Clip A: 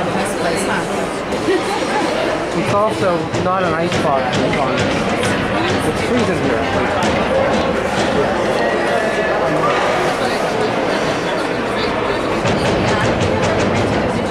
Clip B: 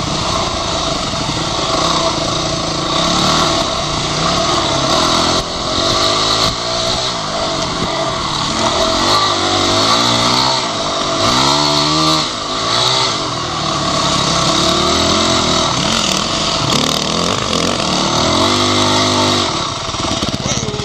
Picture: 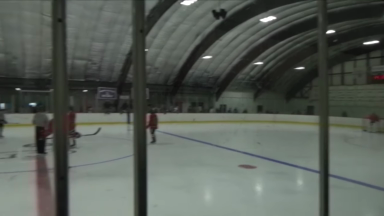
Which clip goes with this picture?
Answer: A